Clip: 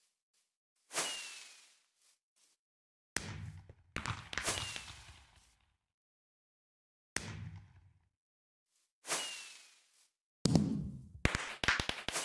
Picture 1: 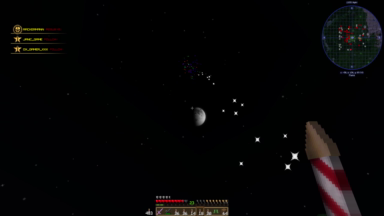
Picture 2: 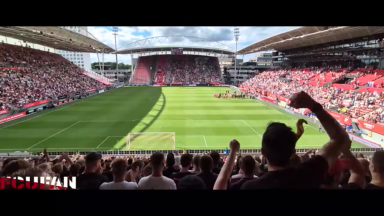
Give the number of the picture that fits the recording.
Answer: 1